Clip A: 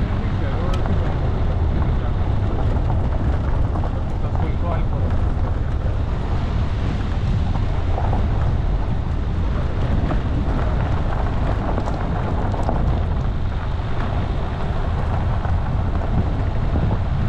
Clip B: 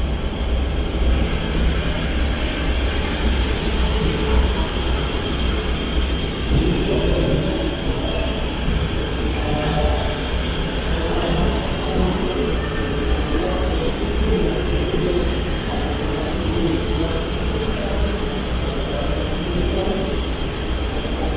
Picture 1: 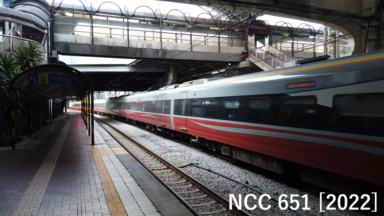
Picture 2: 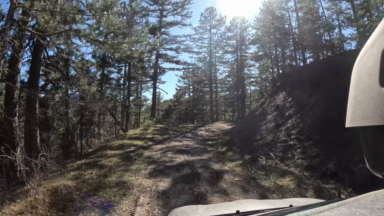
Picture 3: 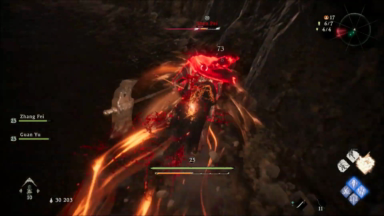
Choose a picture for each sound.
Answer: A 2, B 1